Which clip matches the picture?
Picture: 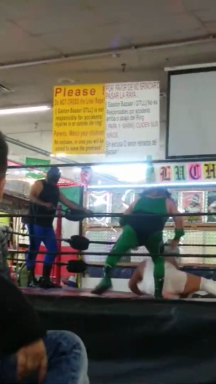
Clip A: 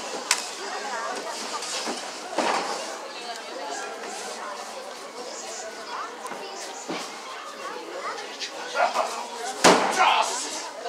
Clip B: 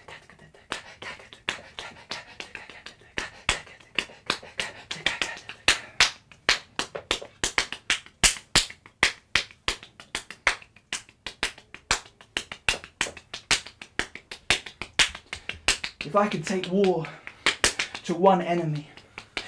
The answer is A